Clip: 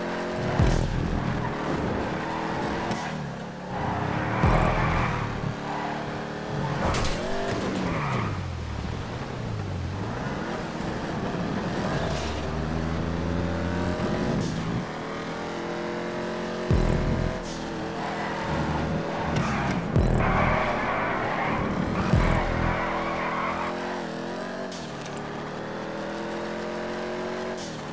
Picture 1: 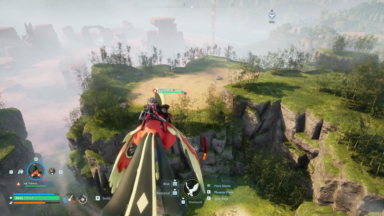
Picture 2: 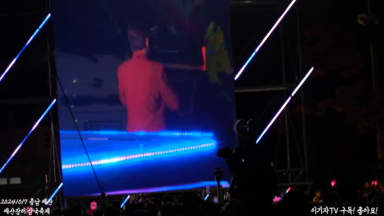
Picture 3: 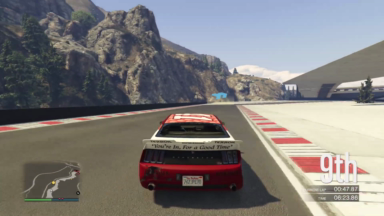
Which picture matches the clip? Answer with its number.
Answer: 3